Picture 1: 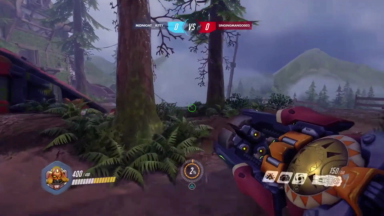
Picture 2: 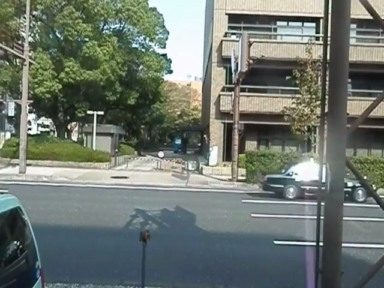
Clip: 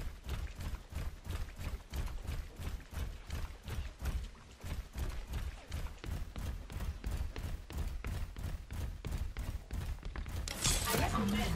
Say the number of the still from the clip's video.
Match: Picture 1